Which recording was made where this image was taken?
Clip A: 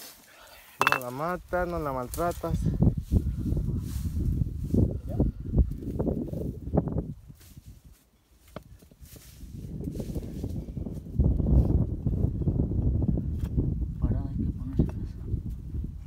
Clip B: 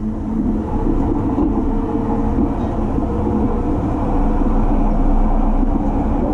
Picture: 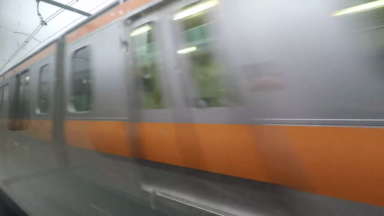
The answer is B